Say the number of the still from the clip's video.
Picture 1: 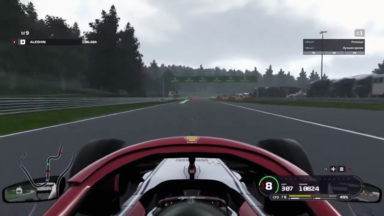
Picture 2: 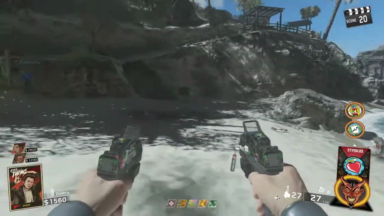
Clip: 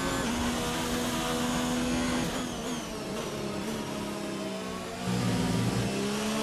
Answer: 1